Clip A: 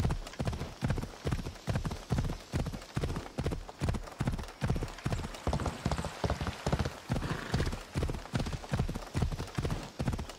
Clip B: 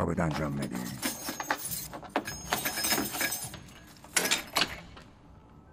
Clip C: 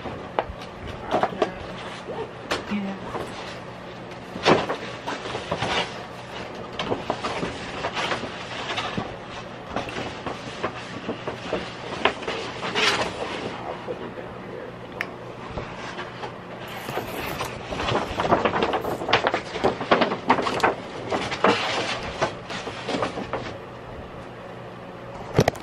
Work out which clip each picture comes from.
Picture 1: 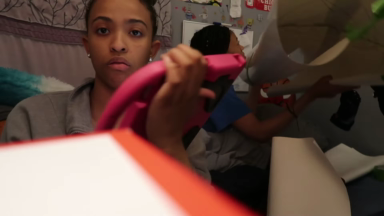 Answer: C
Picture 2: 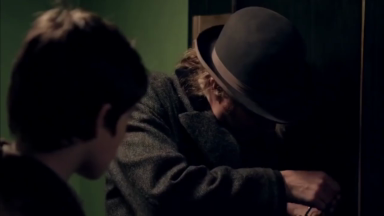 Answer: B